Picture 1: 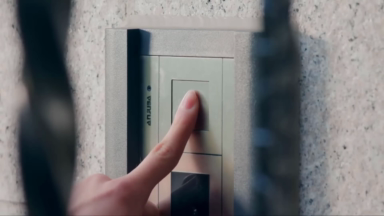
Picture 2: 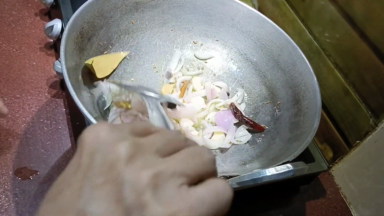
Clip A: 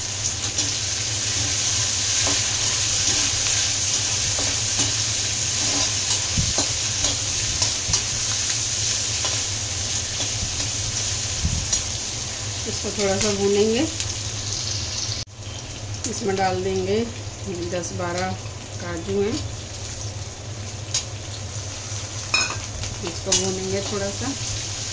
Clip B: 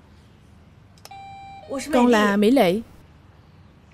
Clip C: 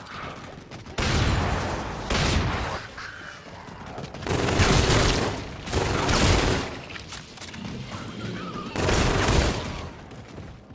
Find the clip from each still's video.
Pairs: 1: B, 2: A